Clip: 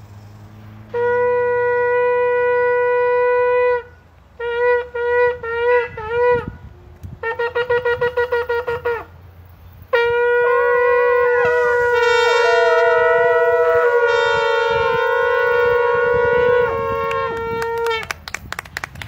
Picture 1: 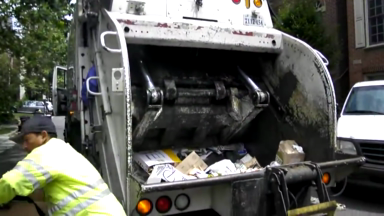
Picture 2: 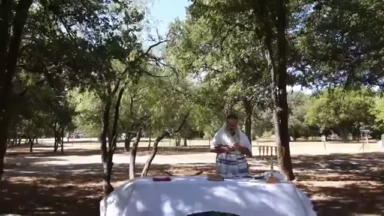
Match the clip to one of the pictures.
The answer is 2